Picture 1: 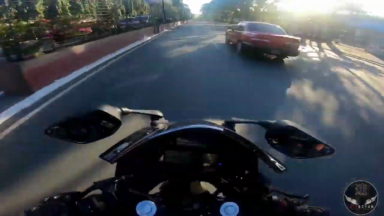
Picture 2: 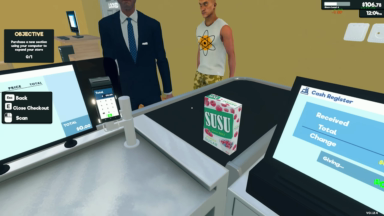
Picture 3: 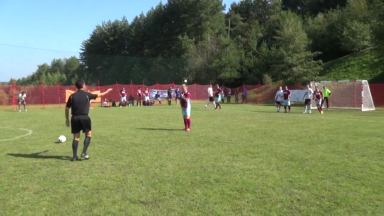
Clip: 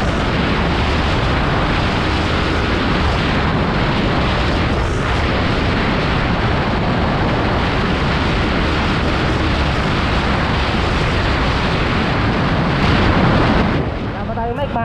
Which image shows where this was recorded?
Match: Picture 1